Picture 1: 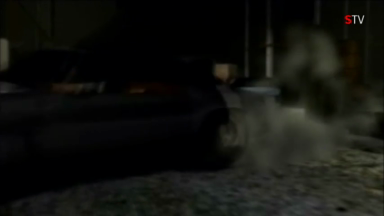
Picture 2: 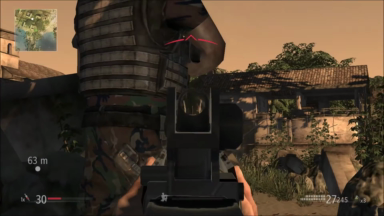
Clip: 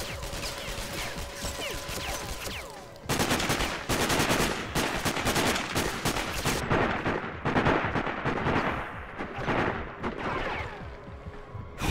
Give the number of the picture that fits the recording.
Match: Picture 2